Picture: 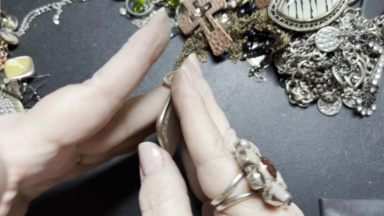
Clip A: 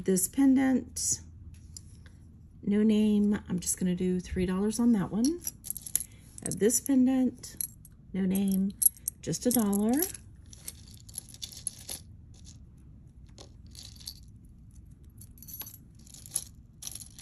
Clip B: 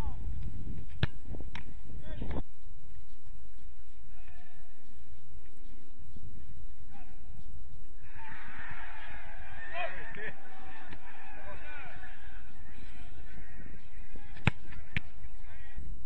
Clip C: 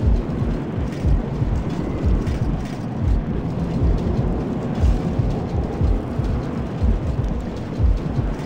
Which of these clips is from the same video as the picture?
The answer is A